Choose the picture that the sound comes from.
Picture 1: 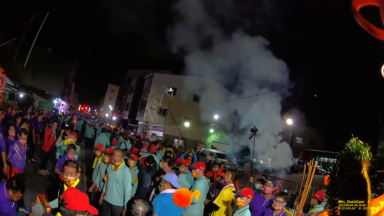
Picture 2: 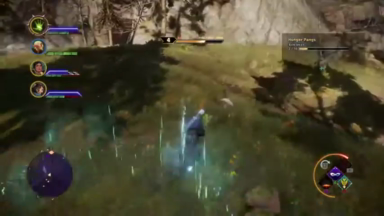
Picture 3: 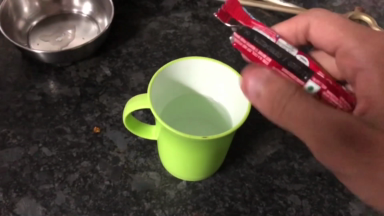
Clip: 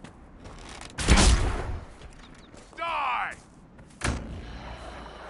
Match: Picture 2